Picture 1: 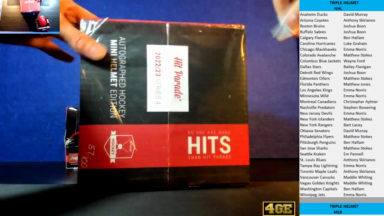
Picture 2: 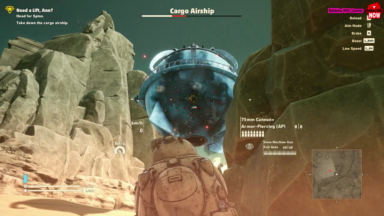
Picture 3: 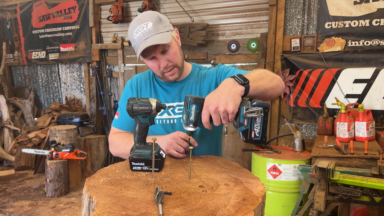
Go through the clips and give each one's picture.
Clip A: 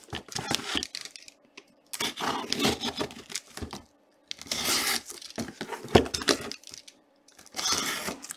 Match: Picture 1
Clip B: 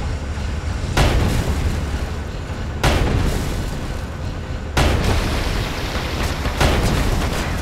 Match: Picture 2